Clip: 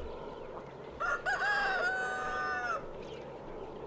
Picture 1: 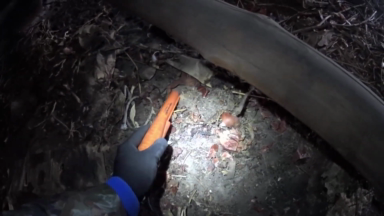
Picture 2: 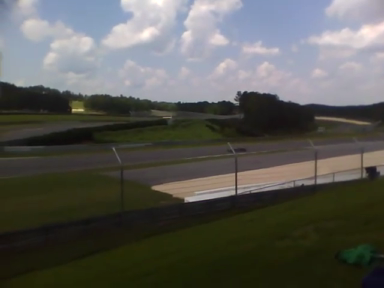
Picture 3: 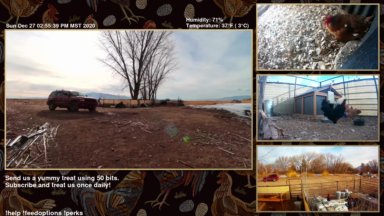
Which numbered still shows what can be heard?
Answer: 3